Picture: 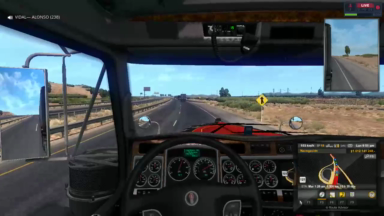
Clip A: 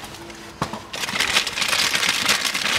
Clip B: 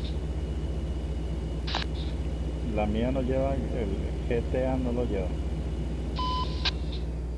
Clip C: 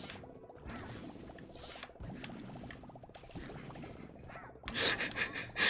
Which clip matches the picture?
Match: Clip B